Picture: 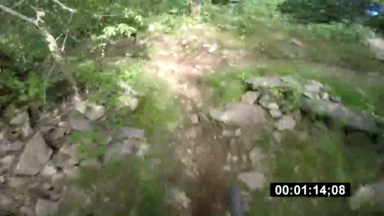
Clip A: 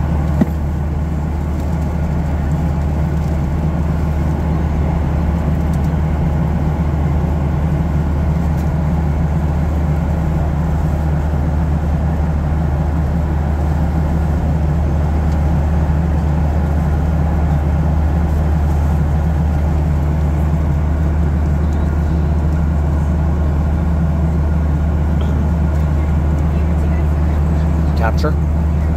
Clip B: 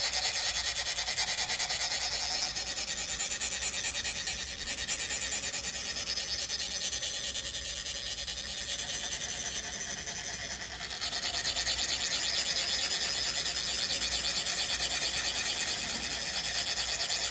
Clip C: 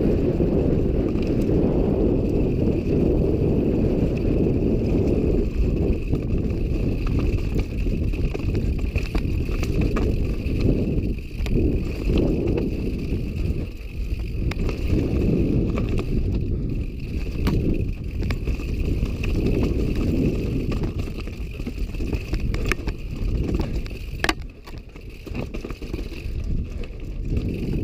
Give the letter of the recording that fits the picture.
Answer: C